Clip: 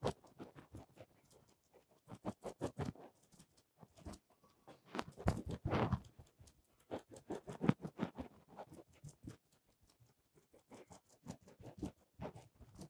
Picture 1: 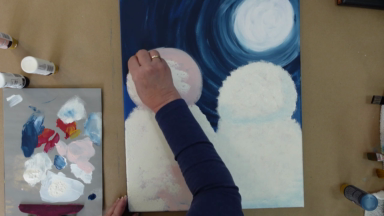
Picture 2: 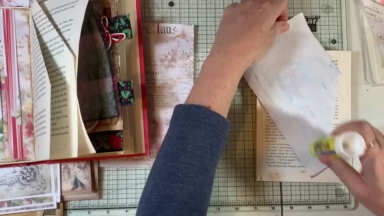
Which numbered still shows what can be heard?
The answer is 1